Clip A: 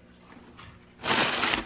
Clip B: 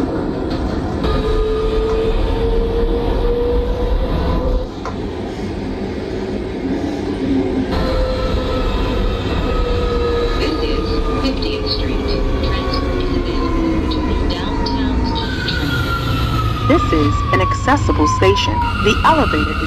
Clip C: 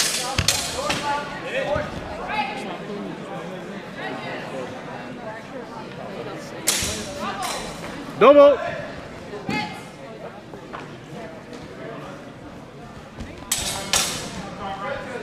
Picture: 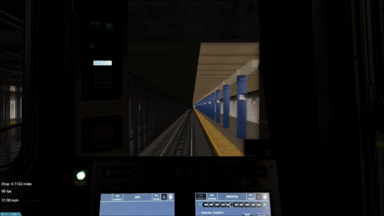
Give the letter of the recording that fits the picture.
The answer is B